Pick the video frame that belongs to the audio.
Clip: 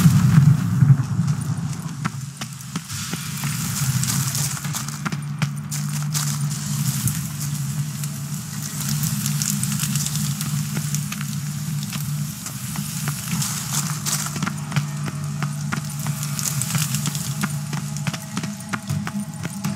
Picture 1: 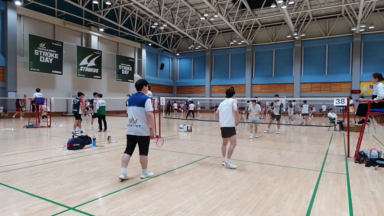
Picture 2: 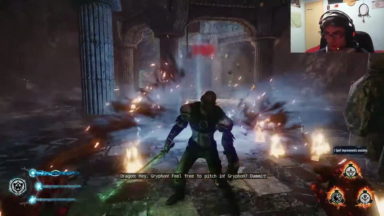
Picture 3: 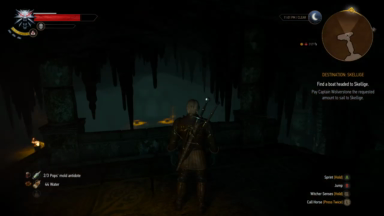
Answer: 3